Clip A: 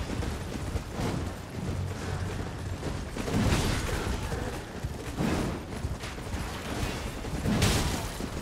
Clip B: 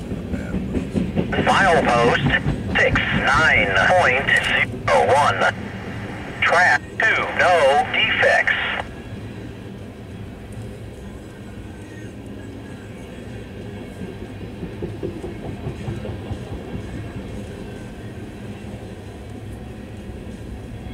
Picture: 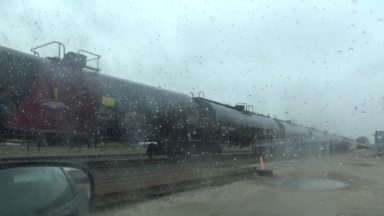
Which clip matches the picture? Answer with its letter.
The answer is B